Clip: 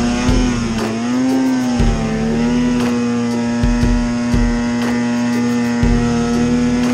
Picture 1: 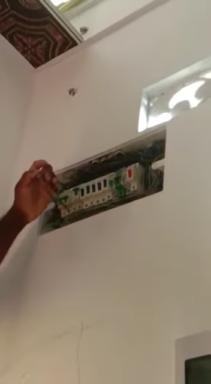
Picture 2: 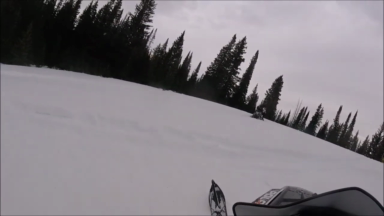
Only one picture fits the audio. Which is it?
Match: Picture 2